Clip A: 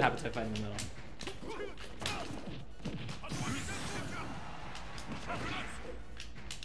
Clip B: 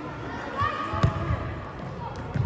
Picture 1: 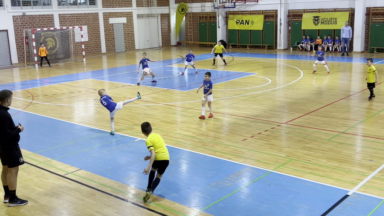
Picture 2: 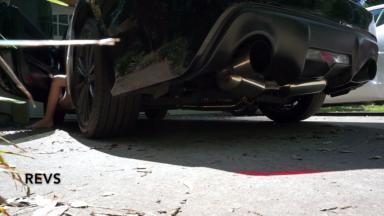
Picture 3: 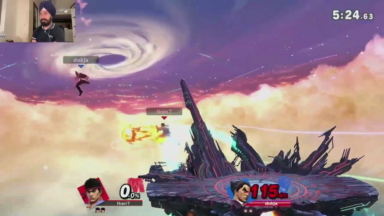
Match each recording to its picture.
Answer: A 3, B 1